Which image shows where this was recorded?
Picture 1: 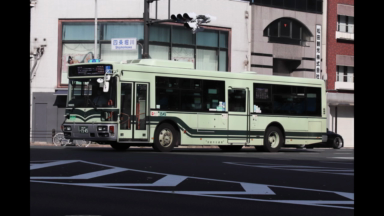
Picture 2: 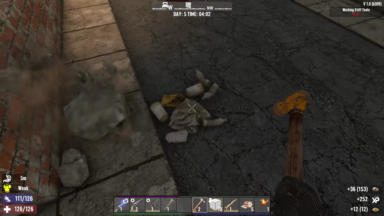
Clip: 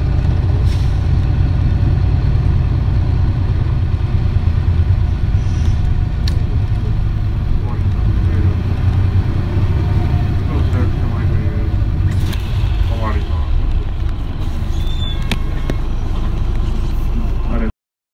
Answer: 1